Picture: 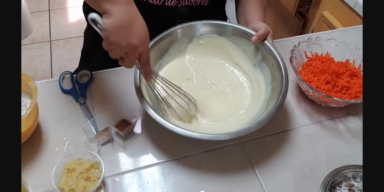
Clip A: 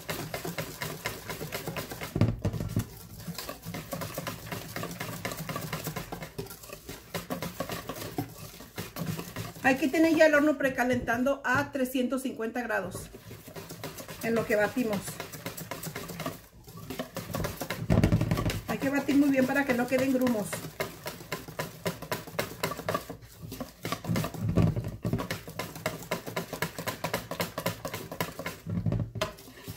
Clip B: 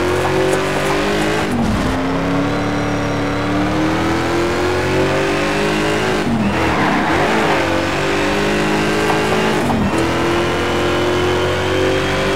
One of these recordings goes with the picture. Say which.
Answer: A